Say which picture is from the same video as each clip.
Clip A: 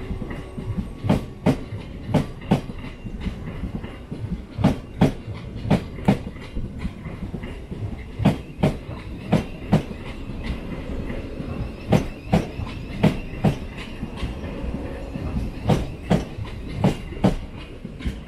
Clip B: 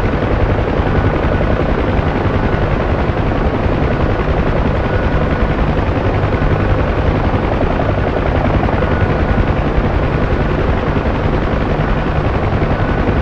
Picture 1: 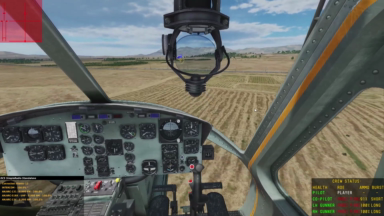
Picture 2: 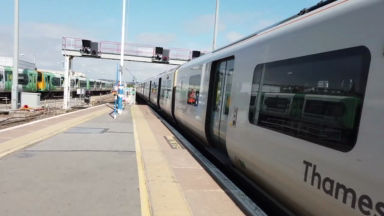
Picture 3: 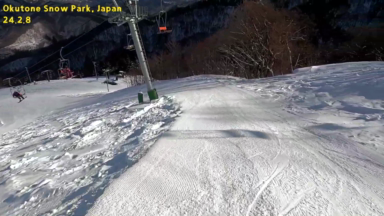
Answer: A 2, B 1